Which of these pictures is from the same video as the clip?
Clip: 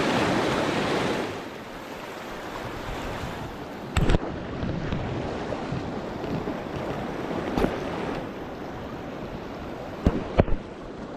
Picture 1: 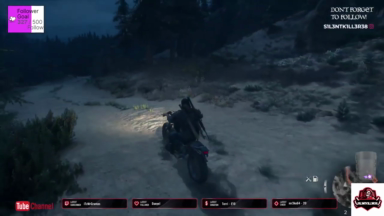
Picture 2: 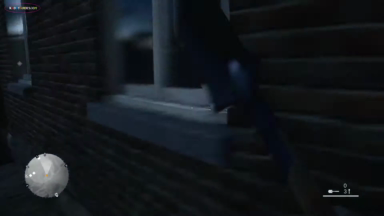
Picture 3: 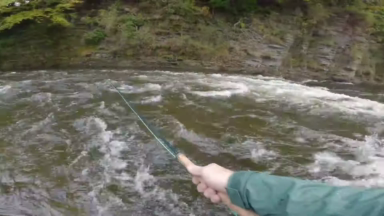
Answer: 3